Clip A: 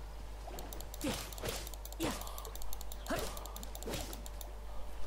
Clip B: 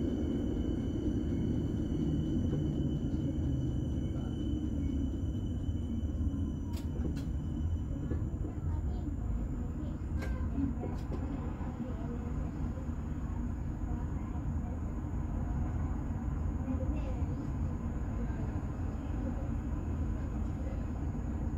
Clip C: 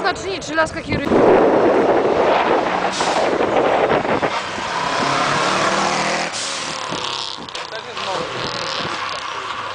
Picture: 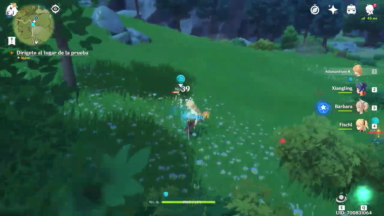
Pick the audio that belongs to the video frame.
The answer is A